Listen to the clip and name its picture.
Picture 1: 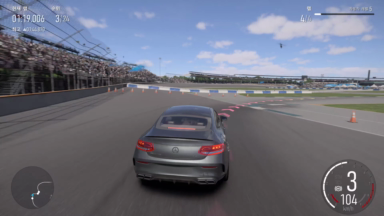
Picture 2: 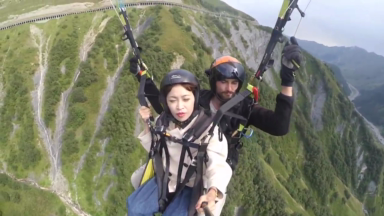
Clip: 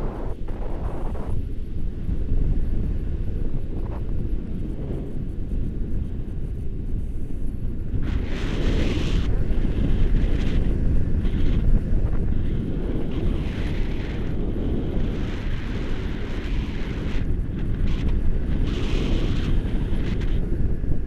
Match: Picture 2